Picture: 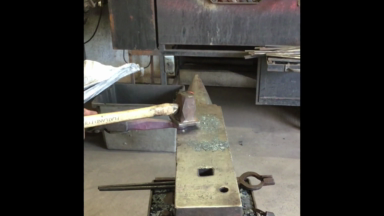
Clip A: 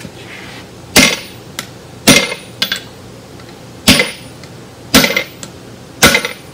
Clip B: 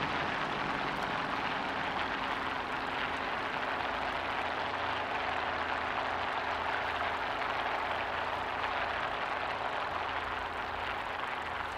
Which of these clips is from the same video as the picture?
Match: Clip A